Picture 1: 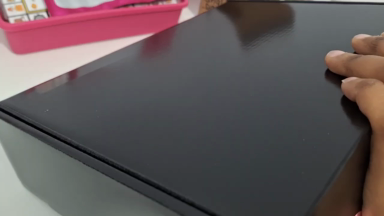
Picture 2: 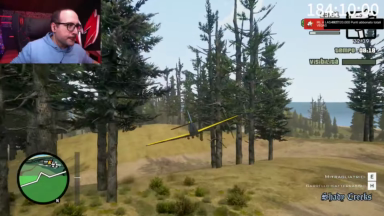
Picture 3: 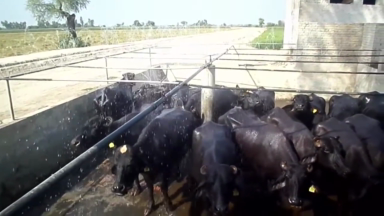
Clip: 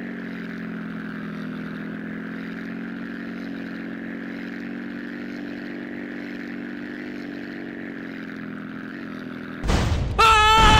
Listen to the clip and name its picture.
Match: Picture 2